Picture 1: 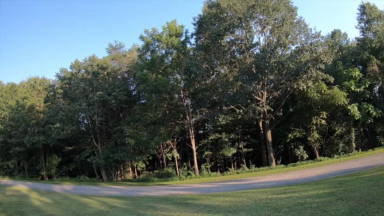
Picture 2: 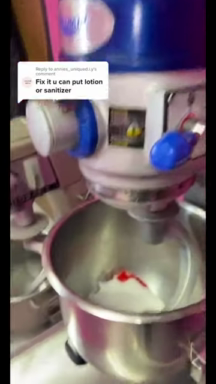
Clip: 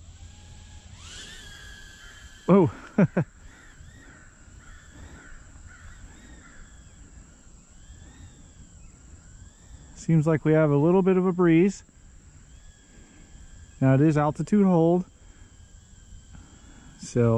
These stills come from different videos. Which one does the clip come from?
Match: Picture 1